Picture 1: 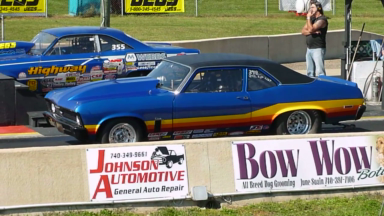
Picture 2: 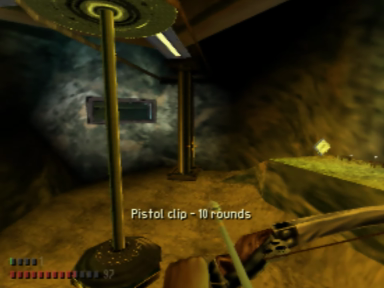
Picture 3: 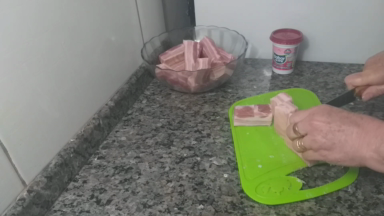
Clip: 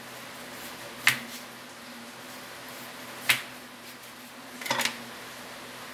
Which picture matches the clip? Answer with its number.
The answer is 3